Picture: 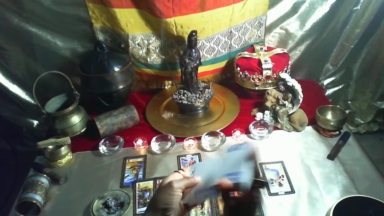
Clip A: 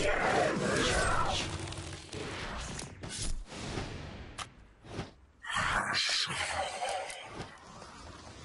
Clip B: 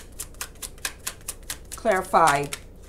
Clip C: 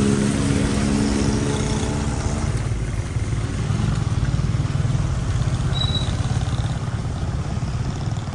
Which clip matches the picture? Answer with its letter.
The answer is B